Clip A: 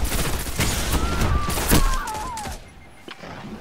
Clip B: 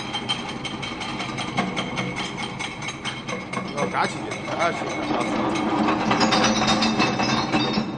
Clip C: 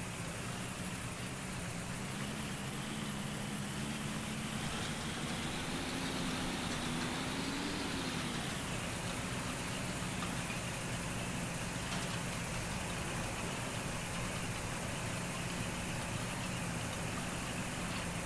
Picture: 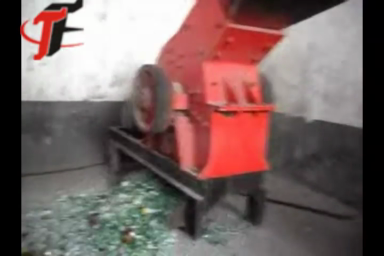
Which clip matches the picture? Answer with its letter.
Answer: B